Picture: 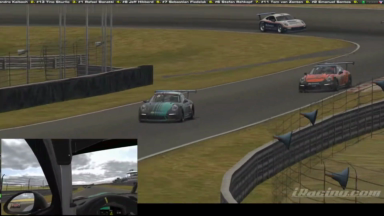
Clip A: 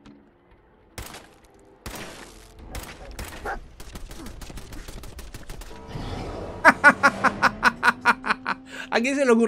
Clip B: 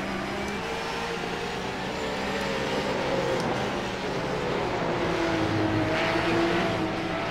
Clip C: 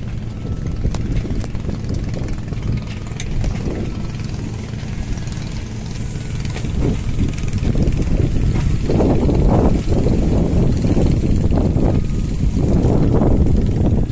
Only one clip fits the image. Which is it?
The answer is B